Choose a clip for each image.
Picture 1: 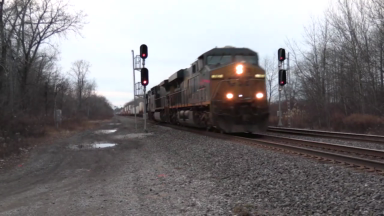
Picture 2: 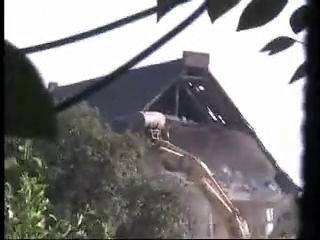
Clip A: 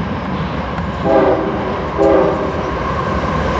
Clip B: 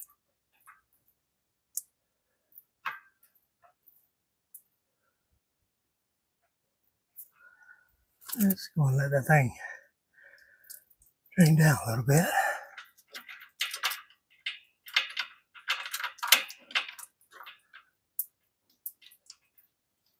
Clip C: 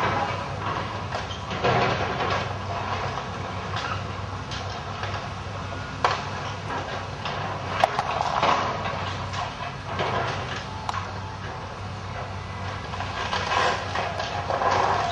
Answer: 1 A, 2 C